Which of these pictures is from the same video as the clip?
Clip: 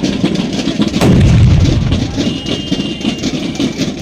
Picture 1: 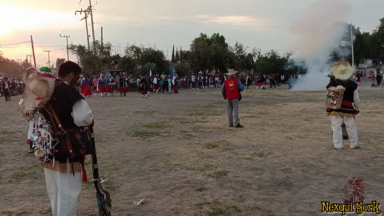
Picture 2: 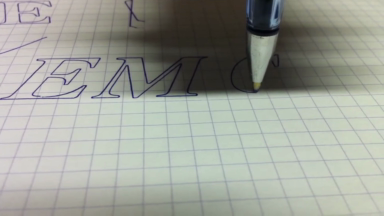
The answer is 1